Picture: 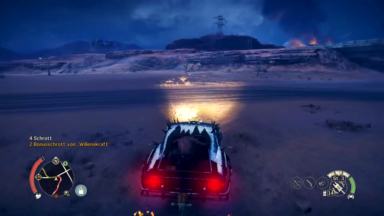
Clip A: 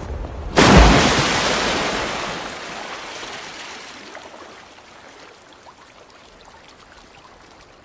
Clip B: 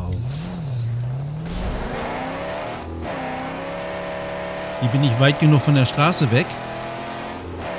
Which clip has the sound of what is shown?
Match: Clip B